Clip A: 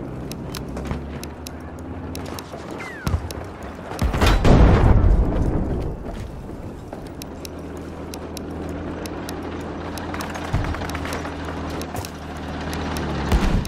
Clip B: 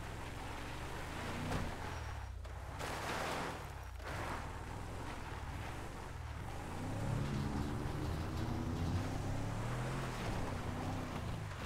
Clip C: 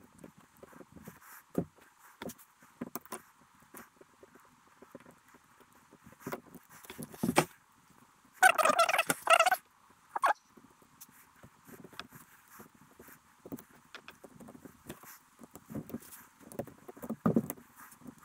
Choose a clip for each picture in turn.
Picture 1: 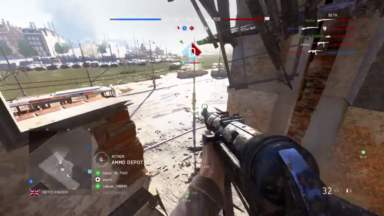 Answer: A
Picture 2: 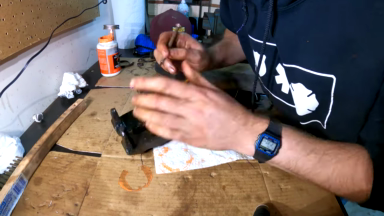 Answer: C